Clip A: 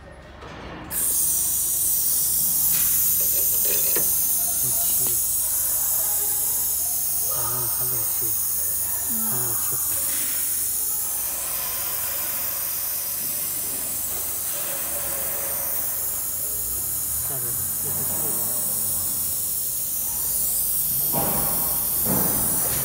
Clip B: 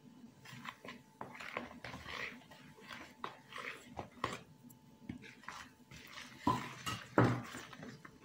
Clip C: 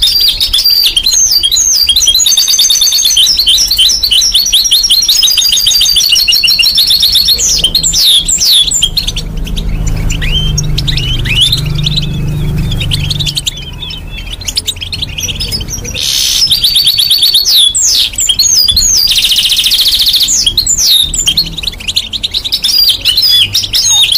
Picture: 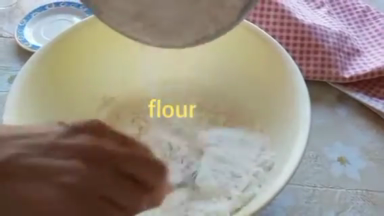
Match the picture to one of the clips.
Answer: B